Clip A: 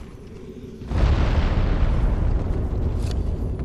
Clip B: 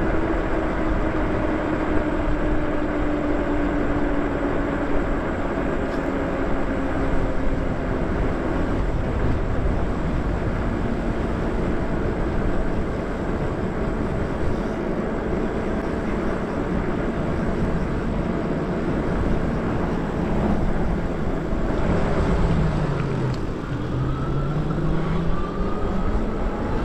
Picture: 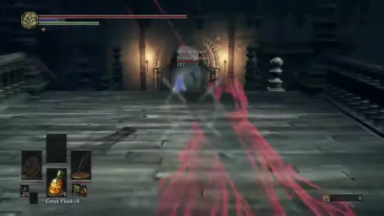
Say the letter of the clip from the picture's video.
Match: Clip A